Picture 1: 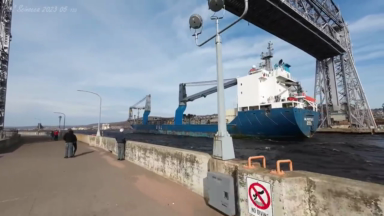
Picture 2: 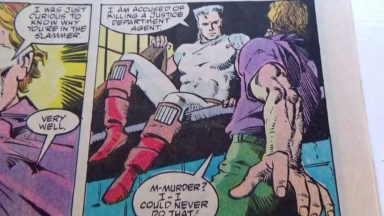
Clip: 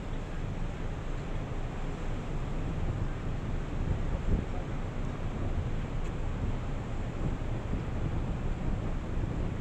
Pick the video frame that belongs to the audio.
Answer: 1